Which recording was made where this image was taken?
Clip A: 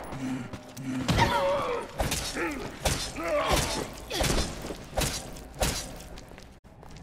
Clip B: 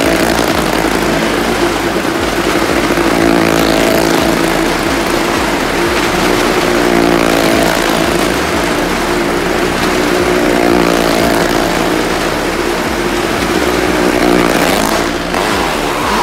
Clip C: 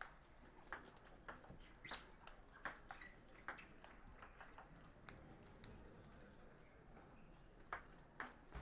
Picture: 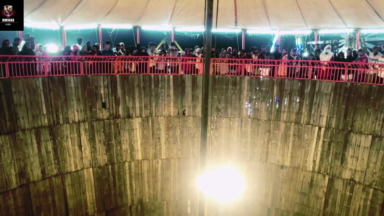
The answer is B